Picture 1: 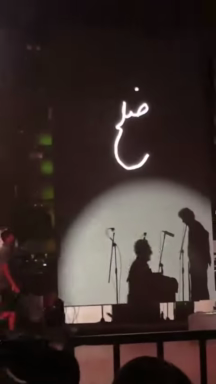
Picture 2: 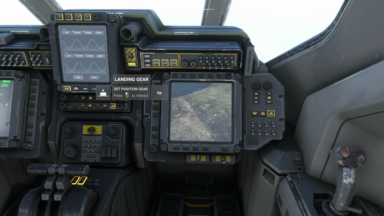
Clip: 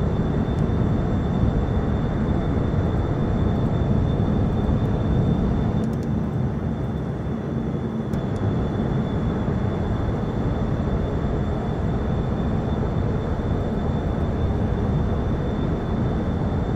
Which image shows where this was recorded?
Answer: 2